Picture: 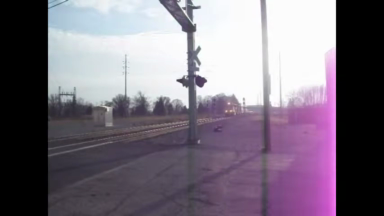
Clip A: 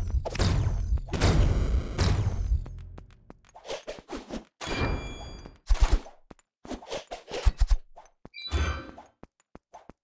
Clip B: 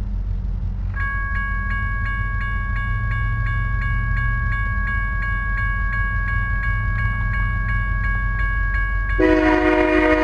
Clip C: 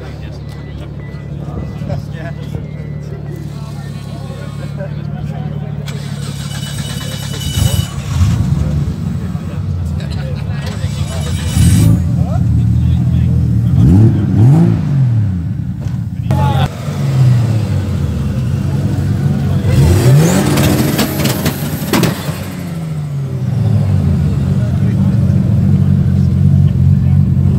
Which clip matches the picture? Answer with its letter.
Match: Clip B